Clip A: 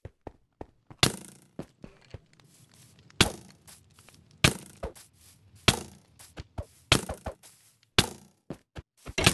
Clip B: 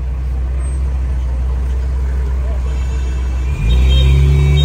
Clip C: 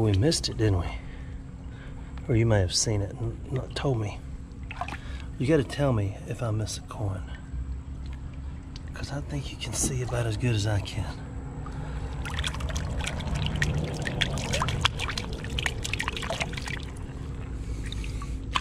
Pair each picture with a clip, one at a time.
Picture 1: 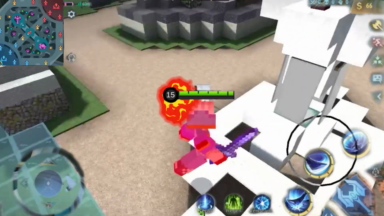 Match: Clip A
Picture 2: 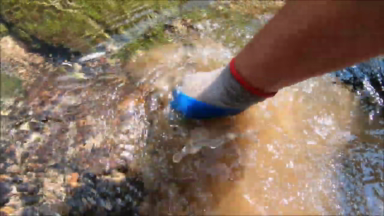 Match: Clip C